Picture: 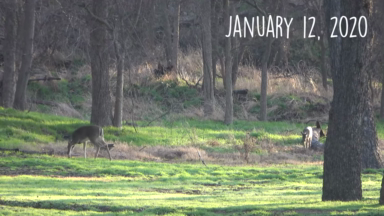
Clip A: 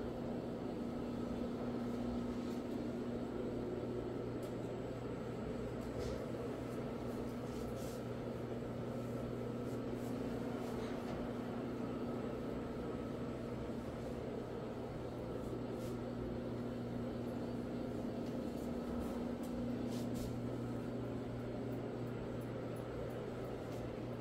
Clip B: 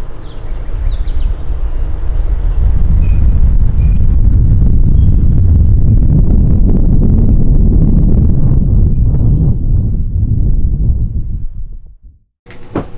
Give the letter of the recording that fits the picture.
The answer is B